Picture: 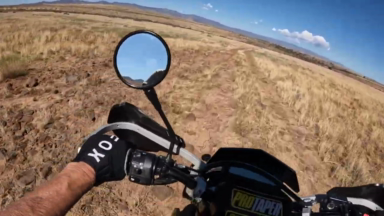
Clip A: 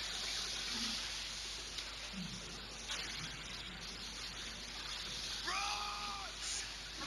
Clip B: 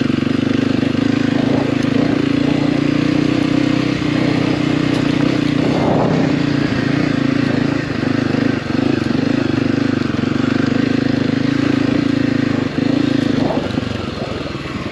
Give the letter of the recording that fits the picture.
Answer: B